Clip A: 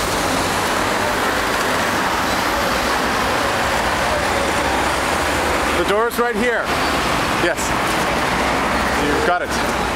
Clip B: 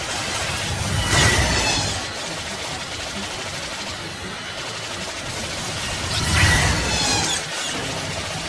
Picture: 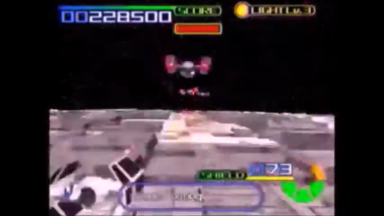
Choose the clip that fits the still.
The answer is B